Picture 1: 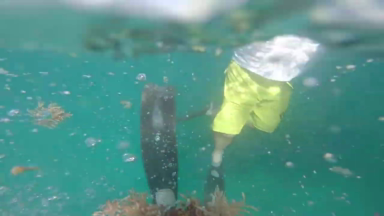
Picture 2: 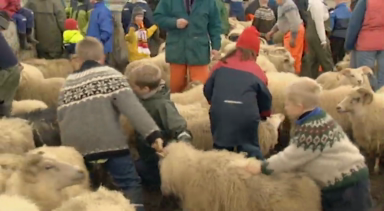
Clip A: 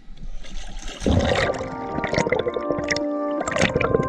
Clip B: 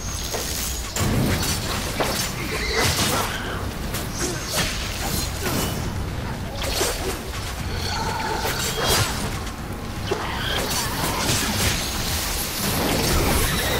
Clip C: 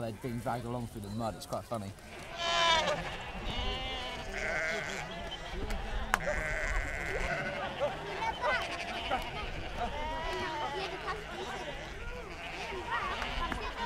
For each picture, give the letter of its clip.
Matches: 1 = A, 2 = C